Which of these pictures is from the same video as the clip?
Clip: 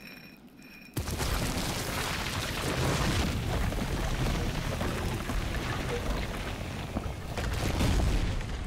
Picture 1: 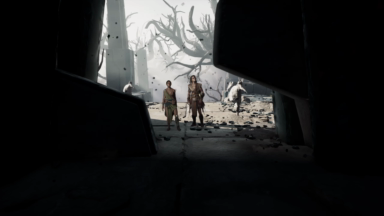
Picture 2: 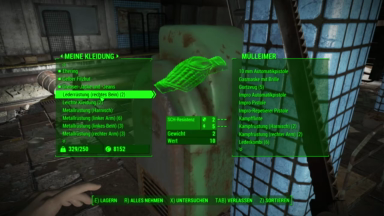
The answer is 1